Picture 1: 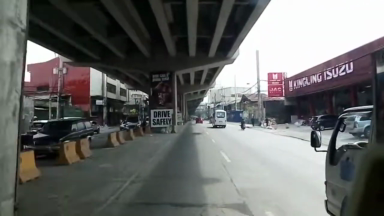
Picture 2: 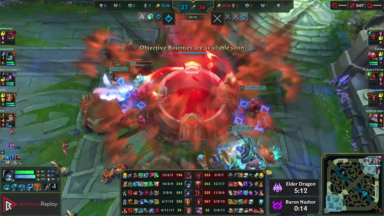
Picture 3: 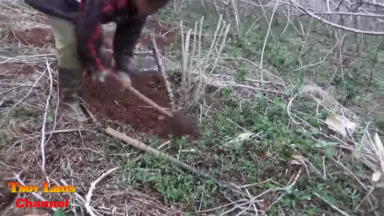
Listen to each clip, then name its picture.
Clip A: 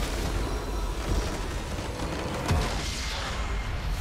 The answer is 2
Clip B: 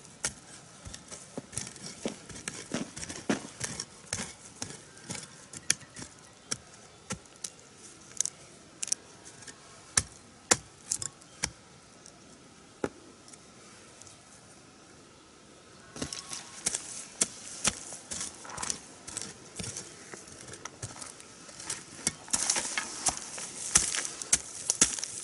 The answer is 3